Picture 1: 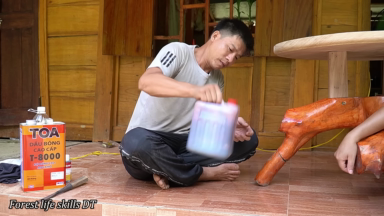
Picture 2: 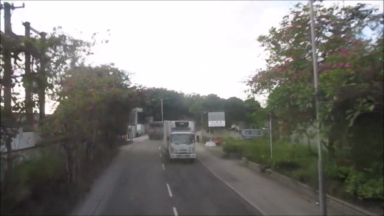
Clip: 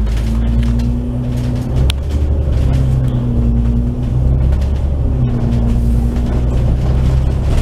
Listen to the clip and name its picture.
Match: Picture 2